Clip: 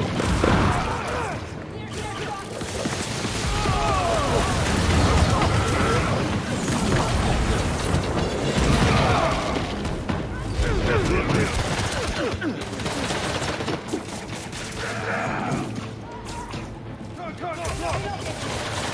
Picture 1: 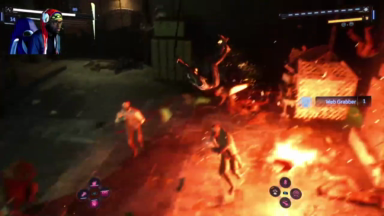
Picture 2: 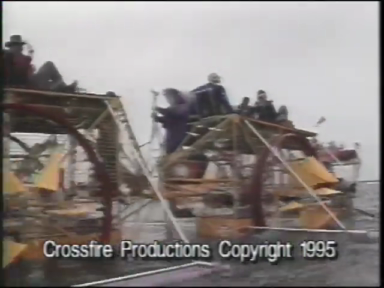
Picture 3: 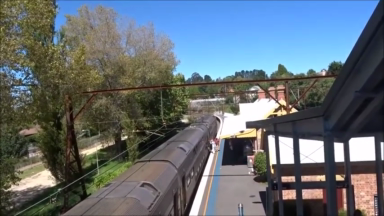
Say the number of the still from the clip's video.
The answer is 1